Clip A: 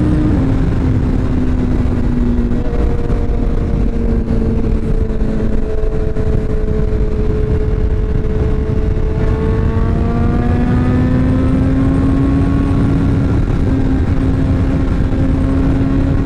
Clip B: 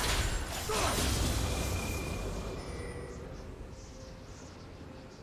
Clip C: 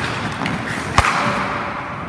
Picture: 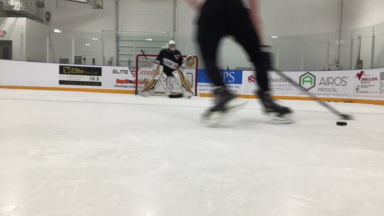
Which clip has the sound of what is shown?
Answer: C